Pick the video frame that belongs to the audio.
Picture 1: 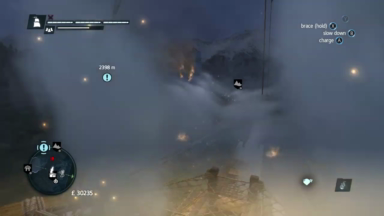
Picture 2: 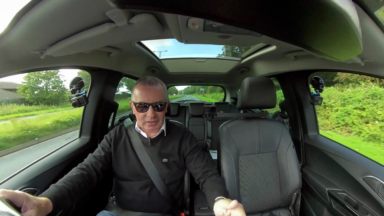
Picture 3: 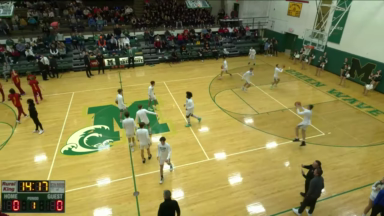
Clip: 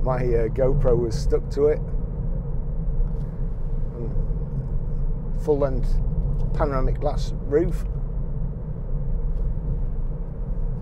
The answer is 2